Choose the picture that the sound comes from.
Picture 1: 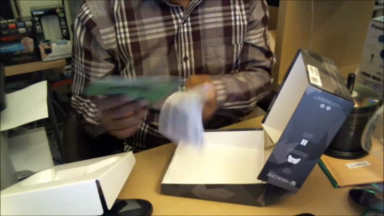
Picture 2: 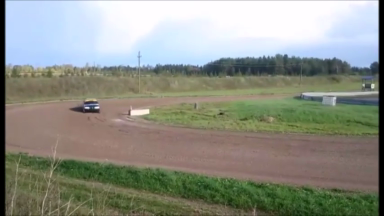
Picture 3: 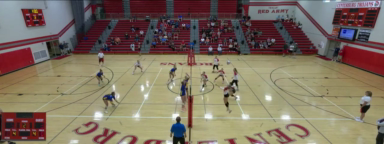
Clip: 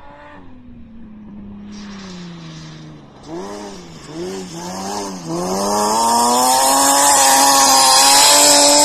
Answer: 2